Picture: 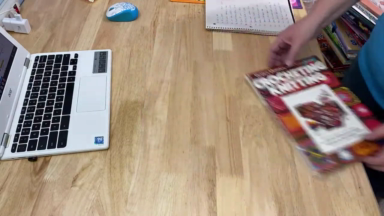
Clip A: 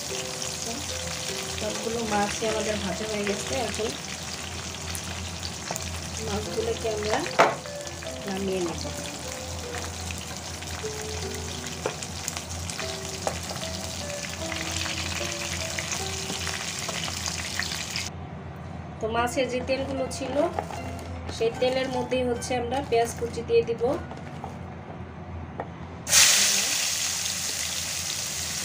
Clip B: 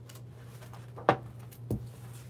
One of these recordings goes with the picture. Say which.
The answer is B